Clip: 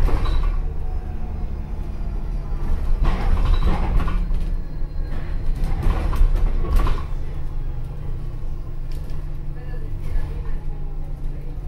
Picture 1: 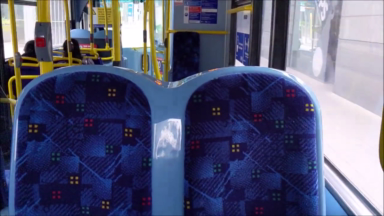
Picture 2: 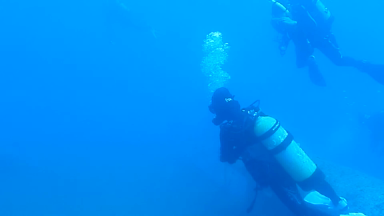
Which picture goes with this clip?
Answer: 1